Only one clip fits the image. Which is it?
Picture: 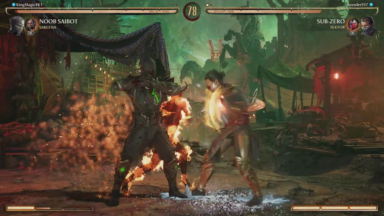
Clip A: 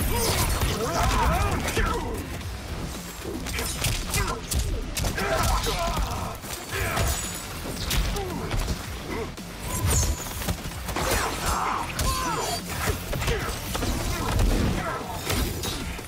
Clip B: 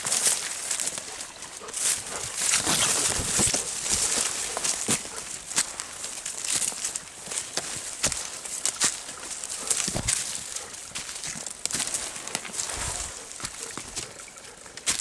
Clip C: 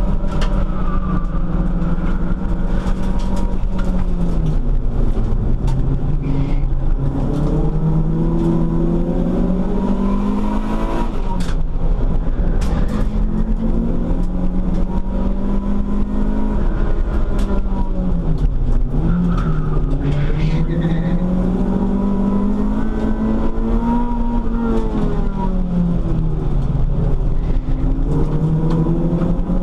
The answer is A